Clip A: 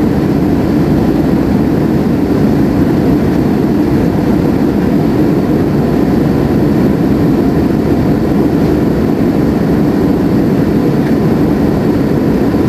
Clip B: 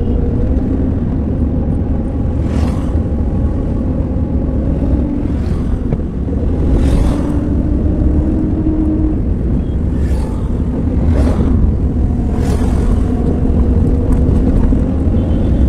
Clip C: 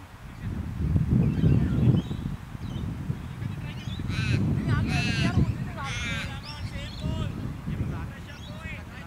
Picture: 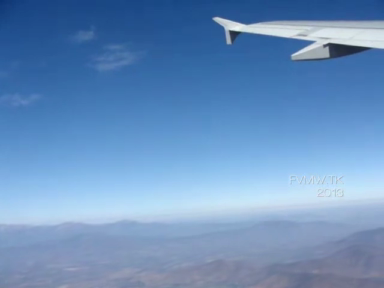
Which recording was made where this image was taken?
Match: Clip A